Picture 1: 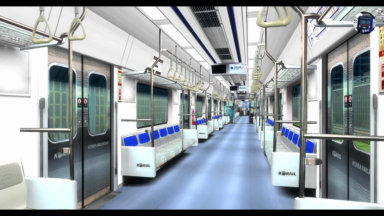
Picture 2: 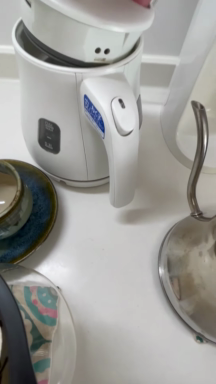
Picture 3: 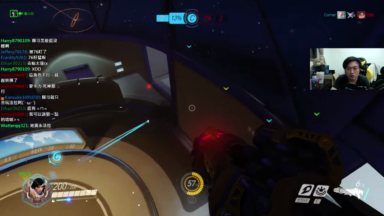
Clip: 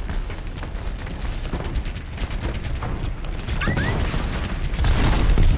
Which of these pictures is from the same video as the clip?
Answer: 3